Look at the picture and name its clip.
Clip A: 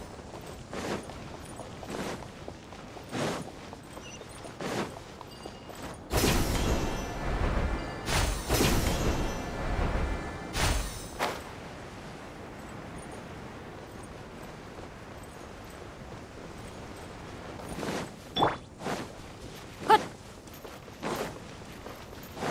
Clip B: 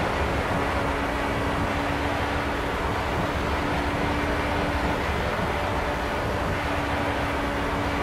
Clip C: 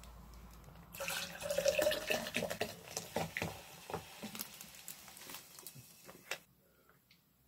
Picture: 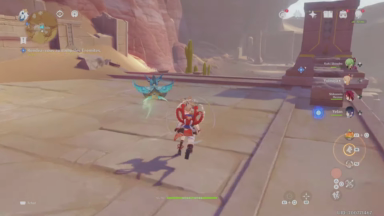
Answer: A